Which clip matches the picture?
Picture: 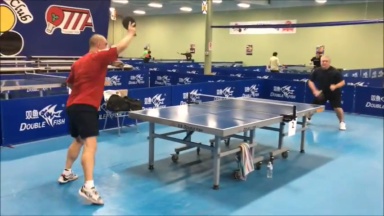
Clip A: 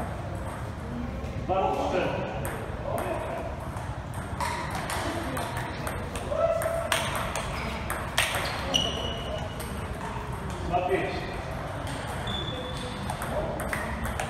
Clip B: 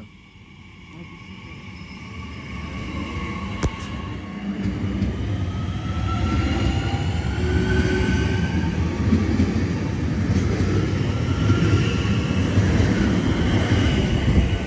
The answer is A